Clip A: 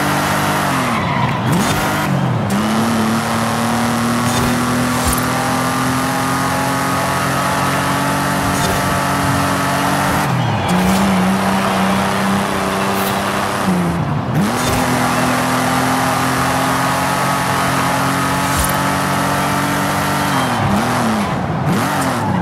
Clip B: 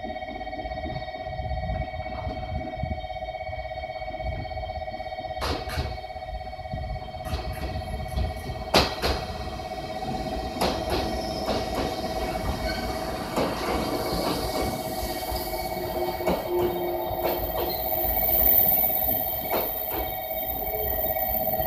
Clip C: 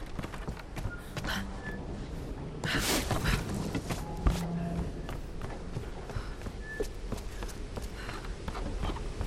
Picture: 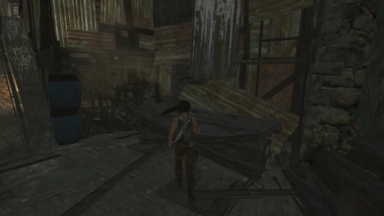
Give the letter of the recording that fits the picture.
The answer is C